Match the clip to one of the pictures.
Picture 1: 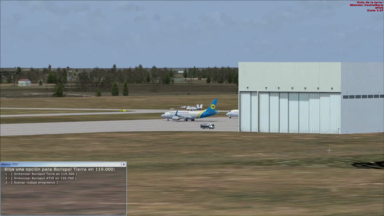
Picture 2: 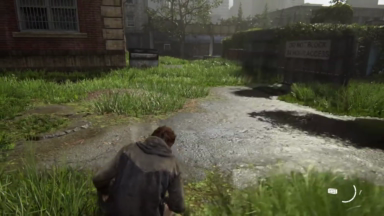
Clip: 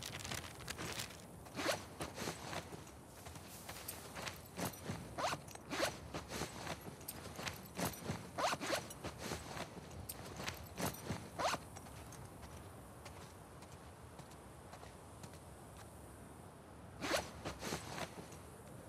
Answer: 2